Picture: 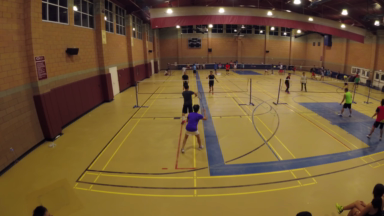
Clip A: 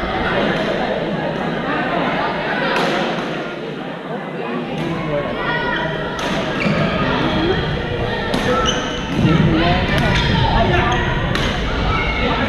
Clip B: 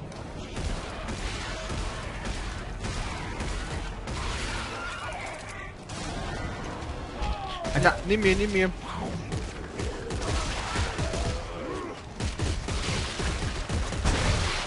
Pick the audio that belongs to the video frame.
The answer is A